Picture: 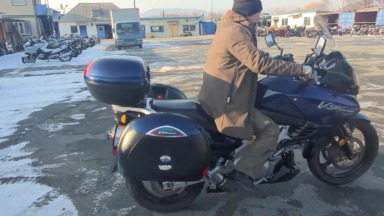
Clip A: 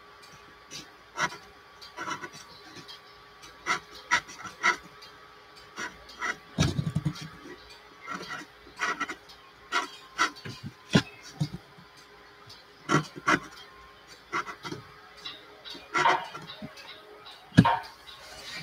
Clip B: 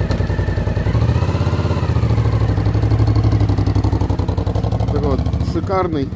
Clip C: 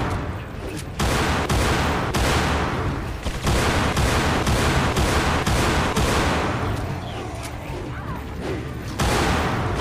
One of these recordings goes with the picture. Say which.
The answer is B